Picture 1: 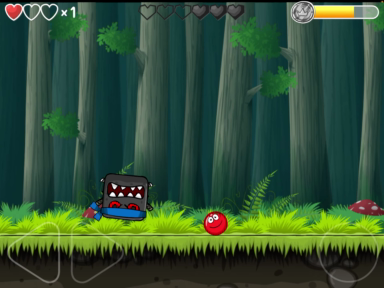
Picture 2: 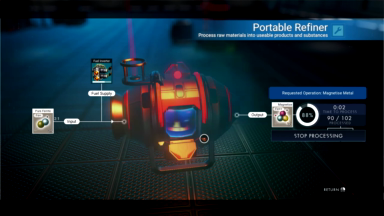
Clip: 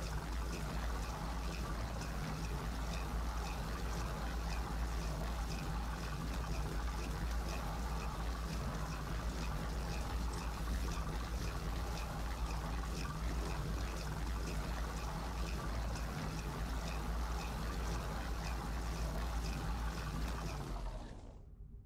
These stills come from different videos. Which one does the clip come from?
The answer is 2